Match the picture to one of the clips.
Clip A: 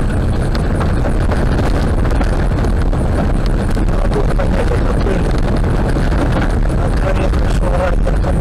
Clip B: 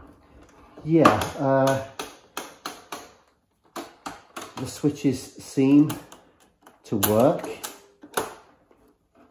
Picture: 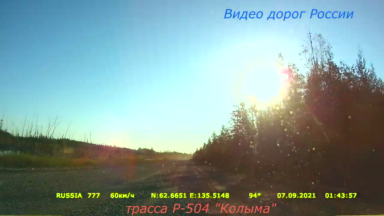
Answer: A